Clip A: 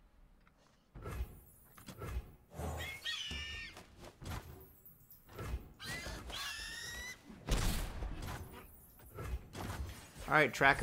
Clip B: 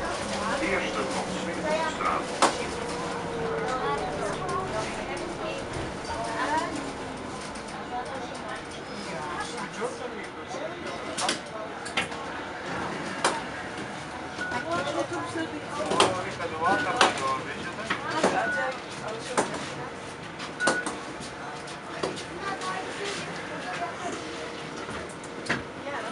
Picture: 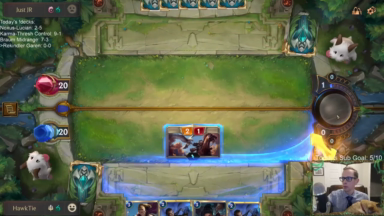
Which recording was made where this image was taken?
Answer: A